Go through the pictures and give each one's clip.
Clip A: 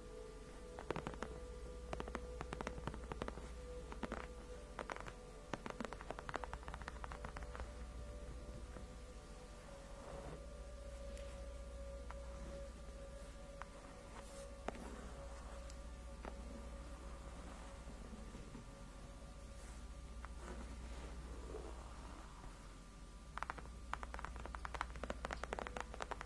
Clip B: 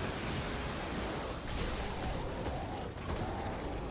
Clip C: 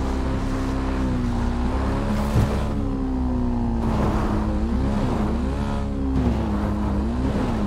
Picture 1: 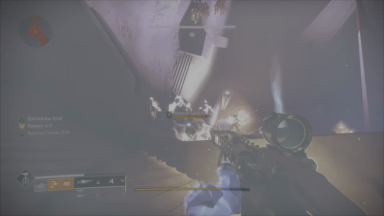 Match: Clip B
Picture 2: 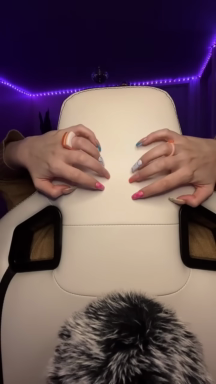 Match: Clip A